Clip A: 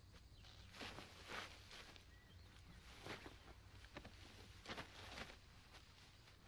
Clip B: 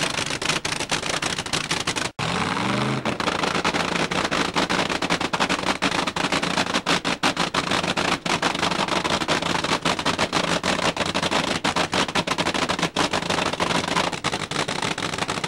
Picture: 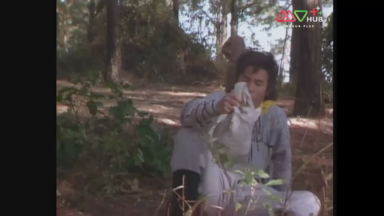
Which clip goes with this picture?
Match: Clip A